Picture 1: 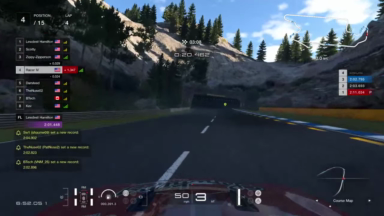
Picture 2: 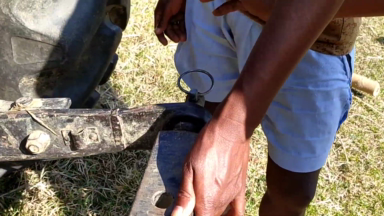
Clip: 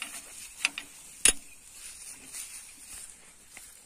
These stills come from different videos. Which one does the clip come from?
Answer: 2